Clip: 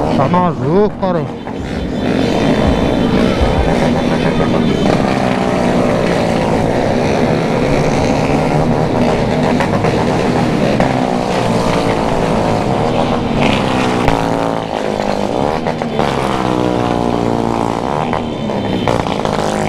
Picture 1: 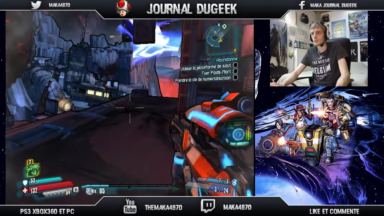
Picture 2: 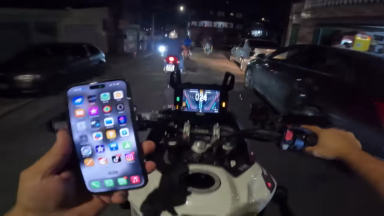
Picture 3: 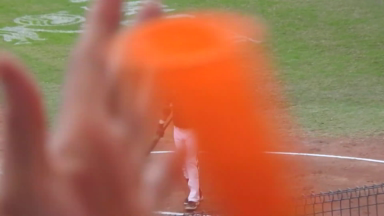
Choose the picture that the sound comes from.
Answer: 2